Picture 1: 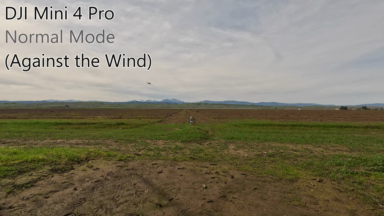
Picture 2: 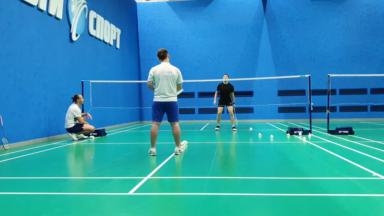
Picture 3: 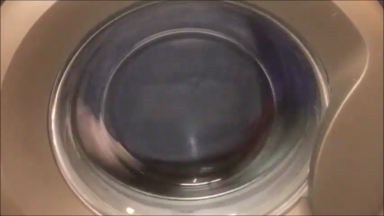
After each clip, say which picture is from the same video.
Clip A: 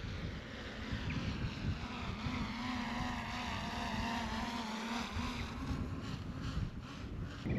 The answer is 1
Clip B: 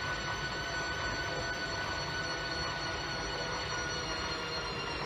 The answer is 3